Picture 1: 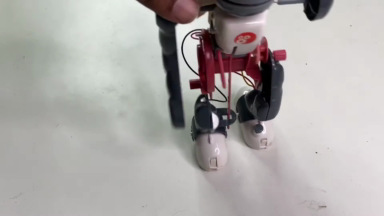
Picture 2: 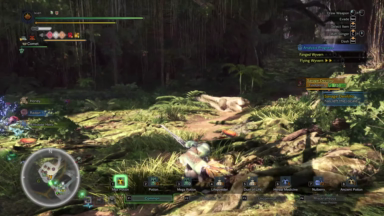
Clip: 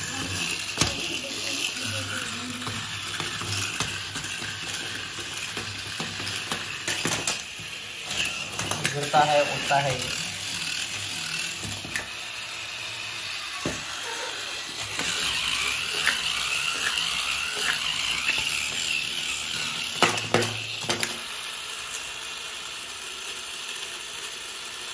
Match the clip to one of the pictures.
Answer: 1